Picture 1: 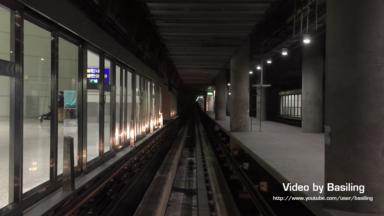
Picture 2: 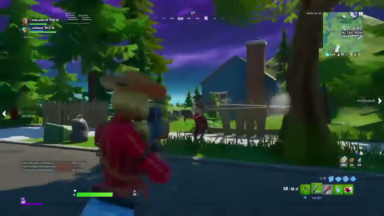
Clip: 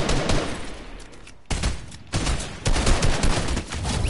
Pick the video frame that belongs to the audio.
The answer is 2